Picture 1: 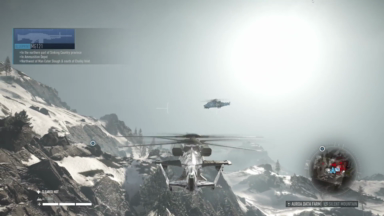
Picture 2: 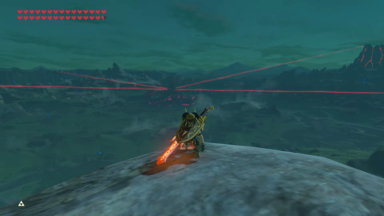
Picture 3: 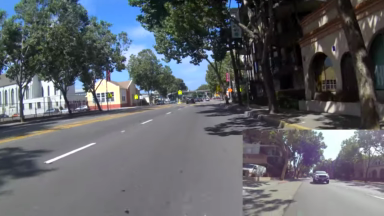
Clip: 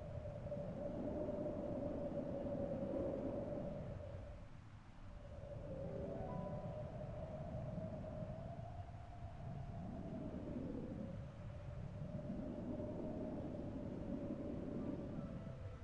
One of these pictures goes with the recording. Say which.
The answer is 2